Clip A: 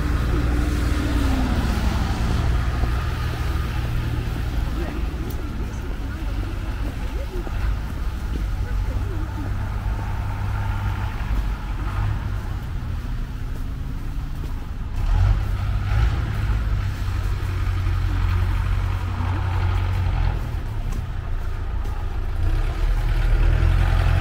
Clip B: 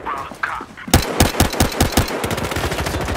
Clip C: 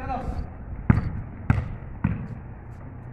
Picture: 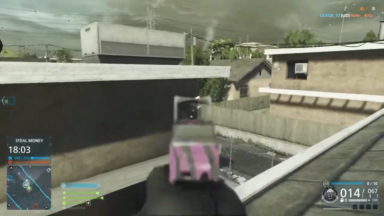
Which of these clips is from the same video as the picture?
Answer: B